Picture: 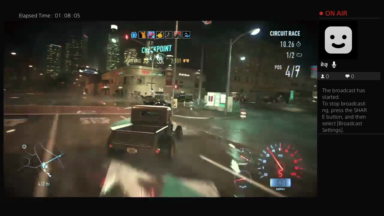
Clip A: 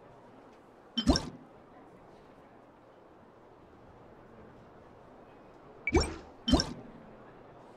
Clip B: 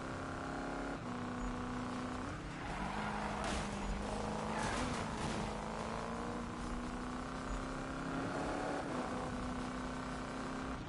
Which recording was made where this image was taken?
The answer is B